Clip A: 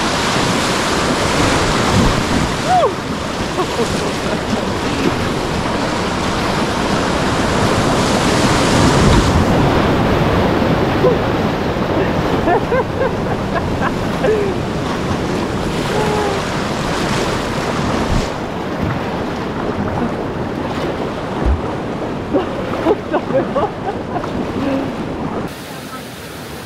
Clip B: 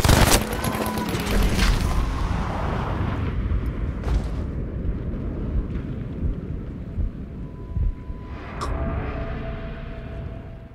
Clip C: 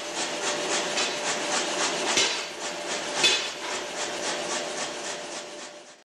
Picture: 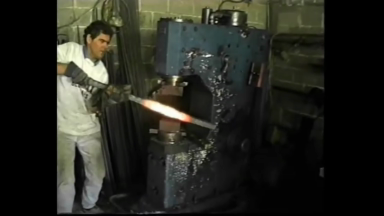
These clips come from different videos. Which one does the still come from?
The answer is C